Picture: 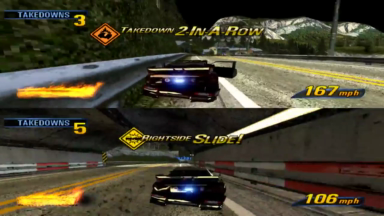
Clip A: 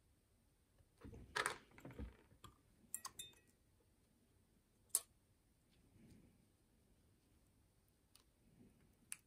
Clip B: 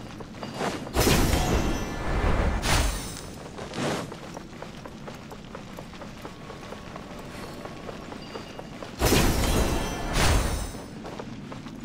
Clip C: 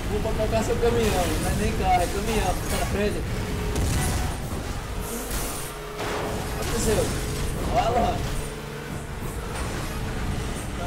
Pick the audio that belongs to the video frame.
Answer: C